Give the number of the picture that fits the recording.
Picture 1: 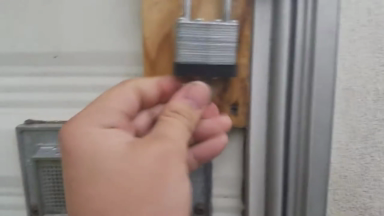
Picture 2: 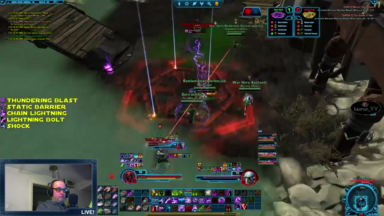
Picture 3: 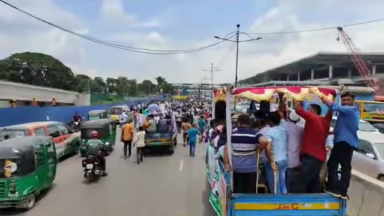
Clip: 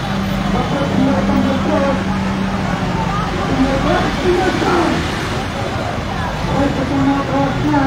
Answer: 3